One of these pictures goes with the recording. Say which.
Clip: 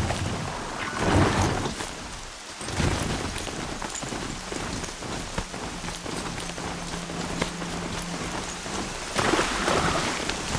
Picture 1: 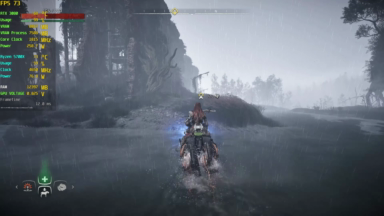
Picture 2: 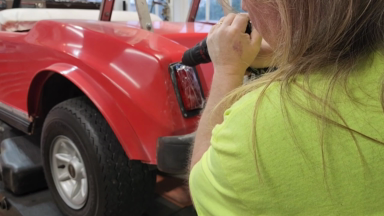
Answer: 1